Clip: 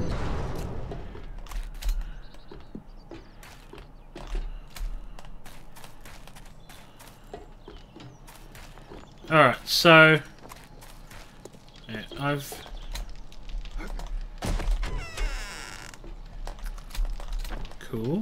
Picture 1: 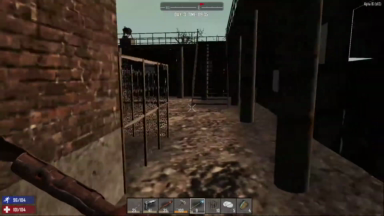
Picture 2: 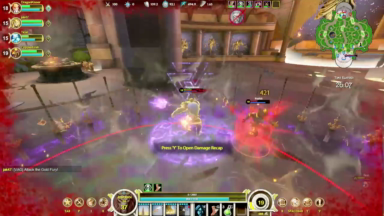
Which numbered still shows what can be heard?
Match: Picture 1